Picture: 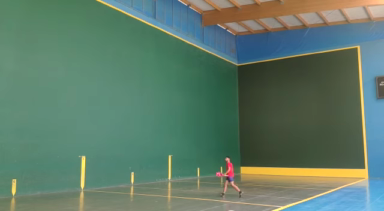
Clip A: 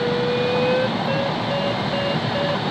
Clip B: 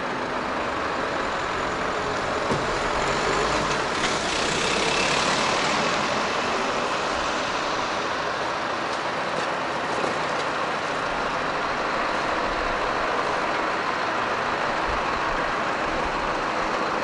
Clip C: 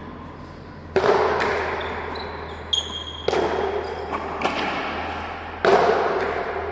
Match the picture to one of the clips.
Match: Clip C